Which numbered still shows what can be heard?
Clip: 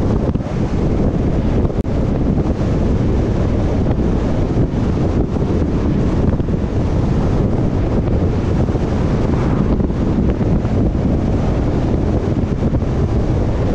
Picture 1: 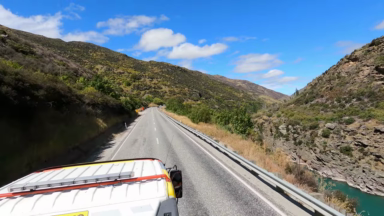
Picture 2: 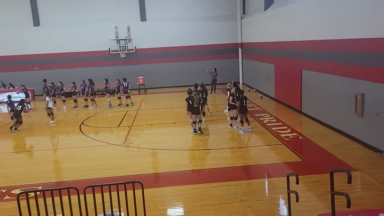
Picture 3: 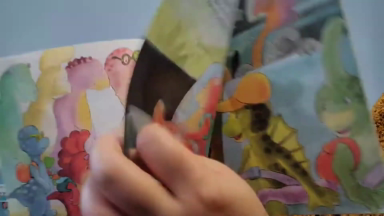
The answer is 1